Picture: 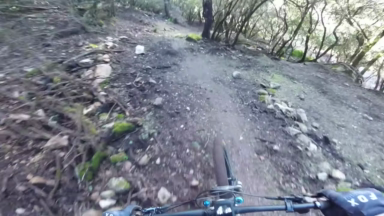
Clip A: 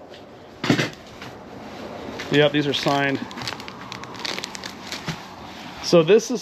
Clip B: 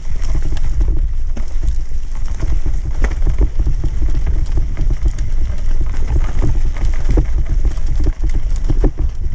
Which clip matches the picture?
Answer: B